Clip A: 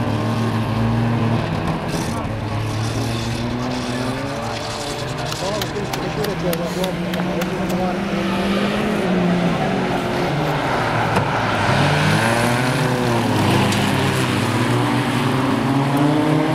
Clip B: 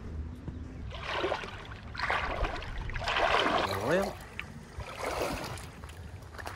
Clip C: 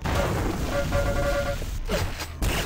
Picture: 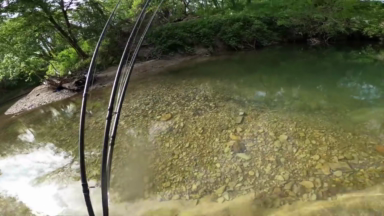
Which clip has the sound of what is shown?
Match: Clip B